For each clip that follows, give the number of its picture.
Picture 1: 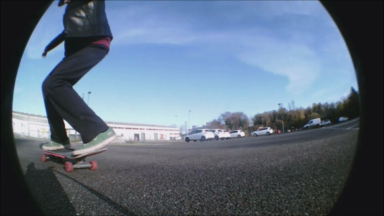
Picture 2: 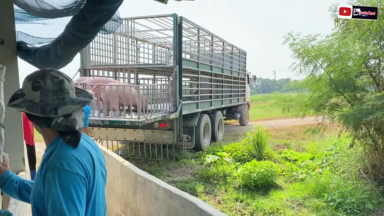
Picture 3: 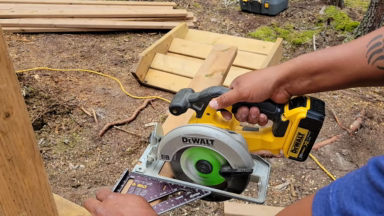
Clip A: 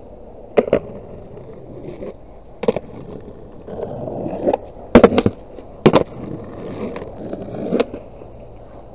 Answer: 1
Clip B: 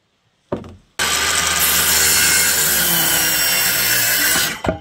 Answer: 3